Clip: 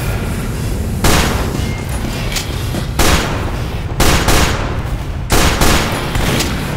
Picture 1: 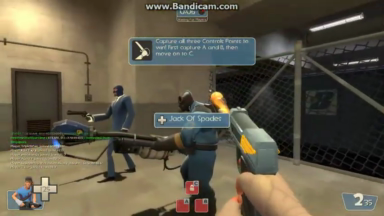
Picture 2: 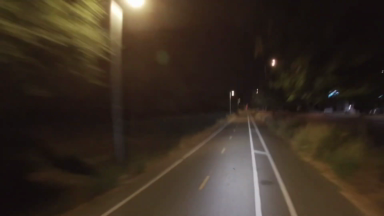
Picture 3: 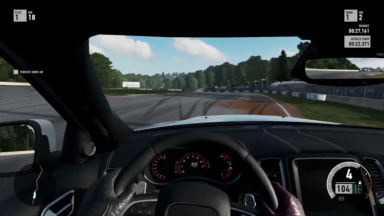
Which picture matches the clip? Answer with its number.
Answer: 1